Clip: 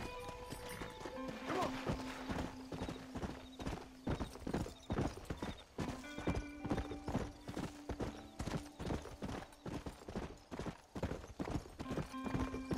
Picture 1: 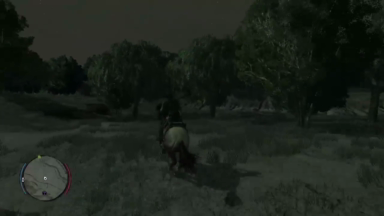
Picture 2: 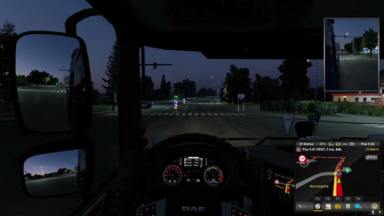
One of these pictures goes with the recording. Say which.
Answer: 1